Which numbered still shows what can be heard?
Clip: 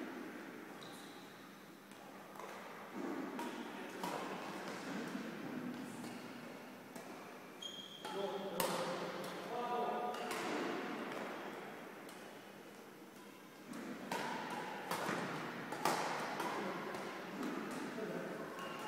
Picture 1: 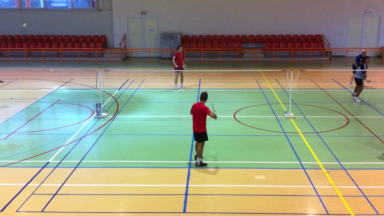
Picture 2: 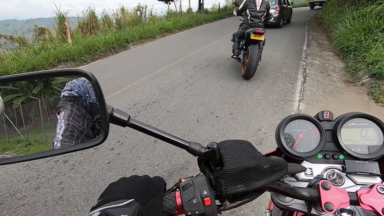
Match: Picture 1